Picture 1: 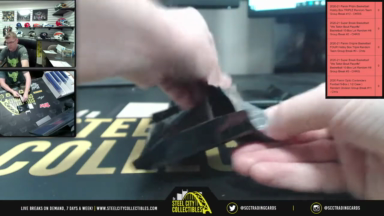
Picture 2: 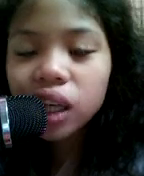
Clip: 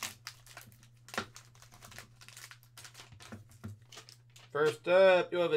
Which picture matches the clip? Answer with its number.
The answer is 1